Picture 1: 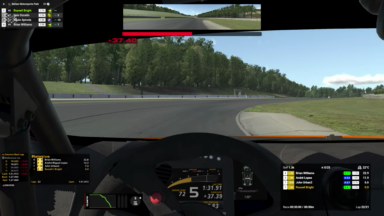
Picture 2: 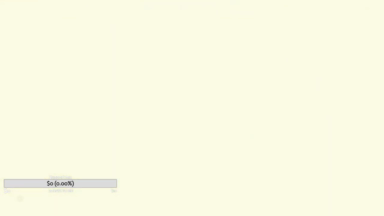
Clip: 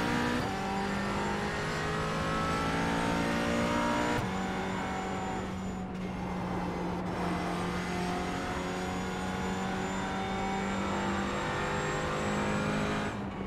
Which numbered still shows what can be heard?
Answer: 1